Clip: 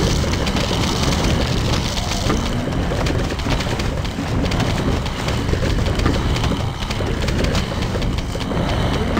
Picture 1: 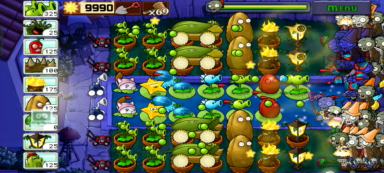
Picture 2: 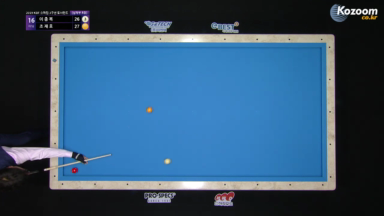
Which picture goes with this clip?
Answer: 1